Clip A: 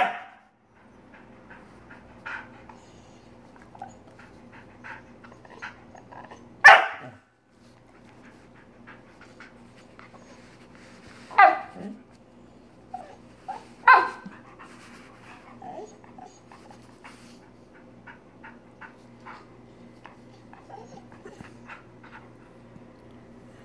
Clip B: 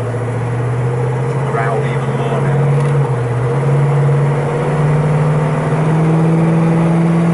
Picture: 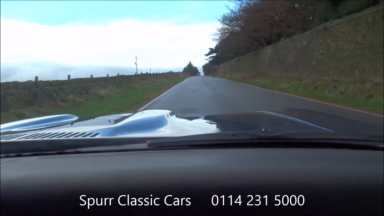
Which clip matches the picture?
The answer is B